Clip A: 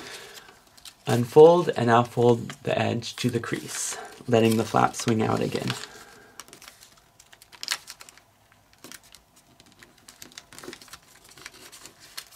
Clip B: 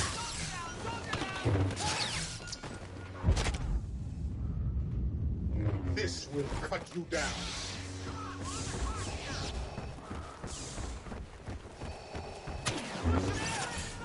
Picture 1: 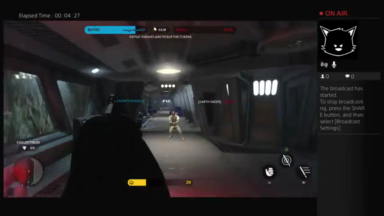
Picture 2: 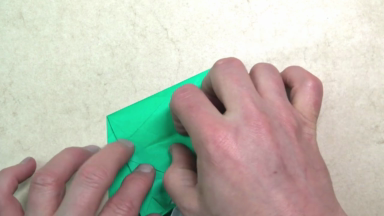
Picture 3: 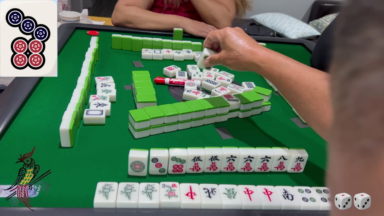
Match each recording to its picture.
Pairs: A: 2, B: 1